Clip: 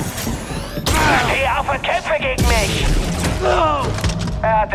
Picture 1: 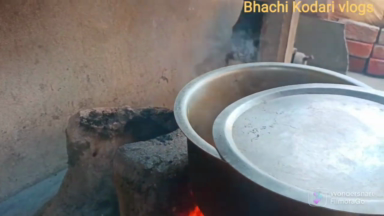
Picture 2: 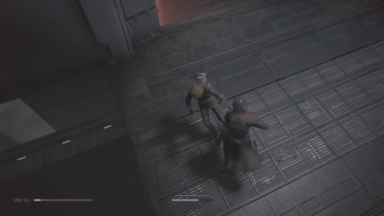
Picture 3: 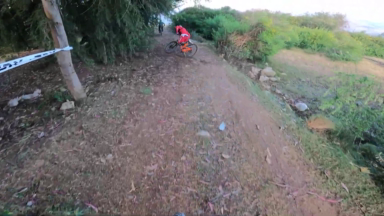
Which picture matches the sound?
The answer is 2